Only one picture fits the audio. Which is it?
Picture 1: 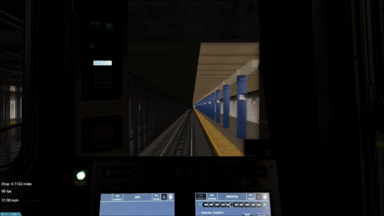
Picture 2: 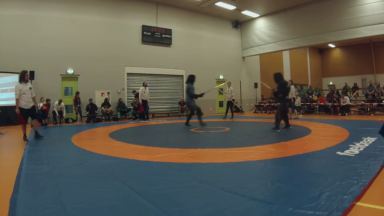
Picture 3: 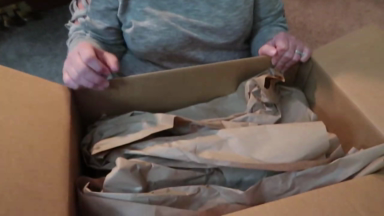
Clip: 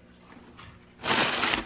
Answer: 3